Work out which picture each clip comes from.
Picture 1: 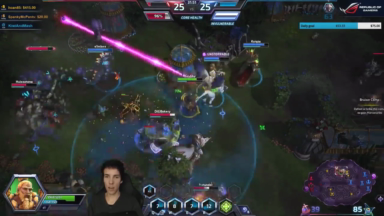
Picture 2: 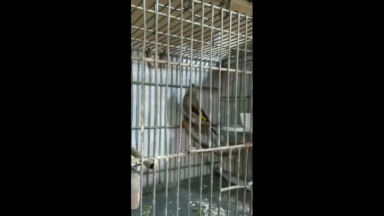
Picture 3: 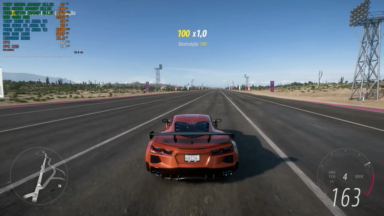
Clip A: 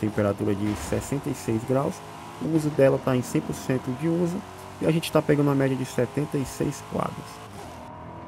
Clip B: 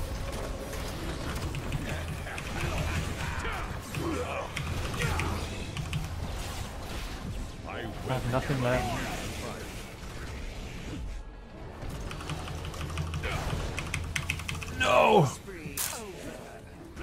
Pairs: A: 3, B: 1